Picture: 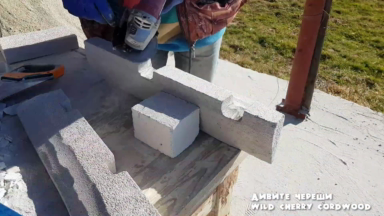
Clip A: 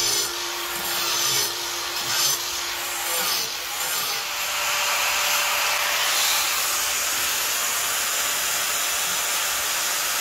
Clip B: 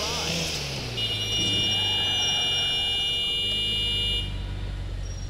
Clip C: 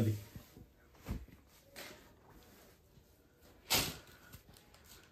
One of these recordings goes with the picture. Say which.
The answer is A